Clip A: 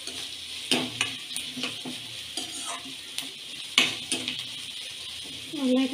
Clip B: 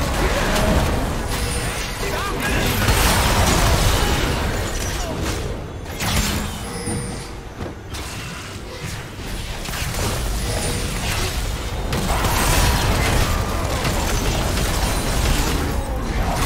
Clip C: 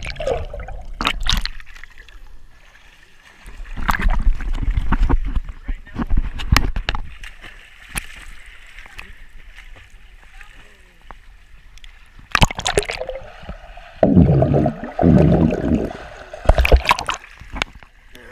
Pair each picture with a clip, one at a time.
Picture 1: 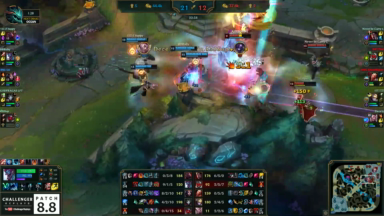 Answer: B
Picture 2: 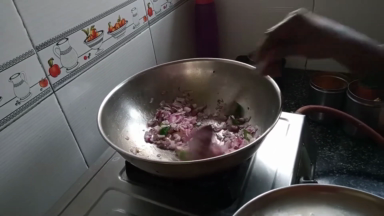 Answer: A